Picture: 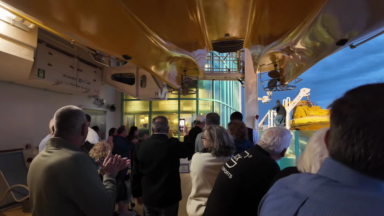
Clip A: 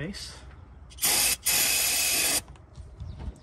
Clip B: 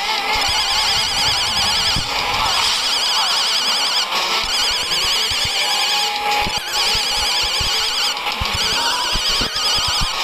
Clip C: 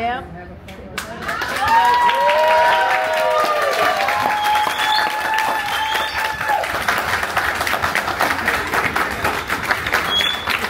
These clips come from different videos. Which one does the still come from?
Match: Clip C